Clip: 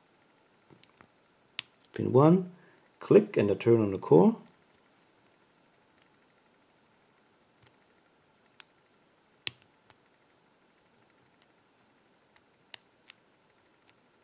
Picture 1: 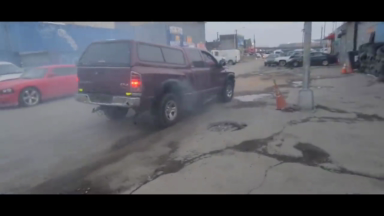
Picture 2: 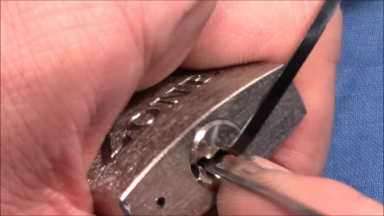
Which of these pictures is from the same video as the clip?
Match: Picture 2